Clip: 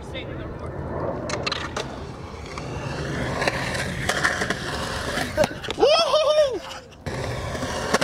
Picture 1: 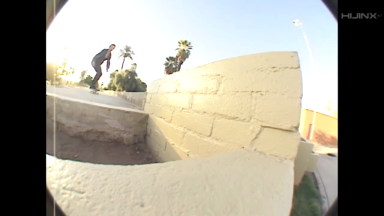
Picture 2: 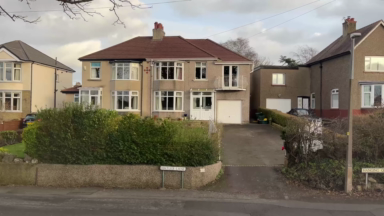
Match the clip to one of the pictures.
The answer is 1